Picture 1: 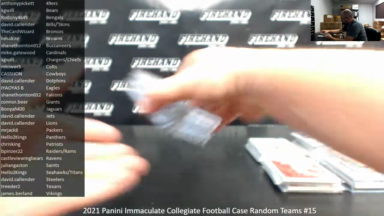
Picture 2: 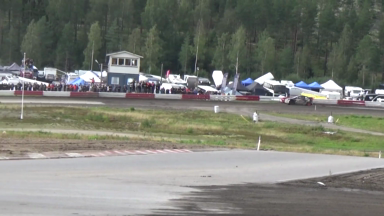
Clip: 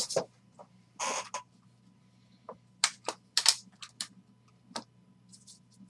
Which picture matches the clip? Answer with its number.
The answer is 1